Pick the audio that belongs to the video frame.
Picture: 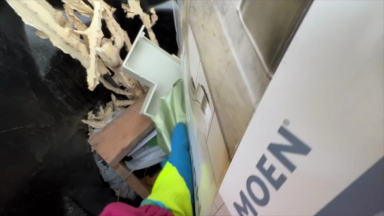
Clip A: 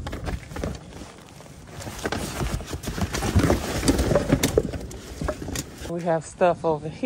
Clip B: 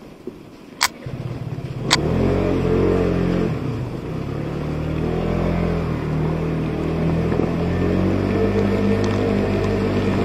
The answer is A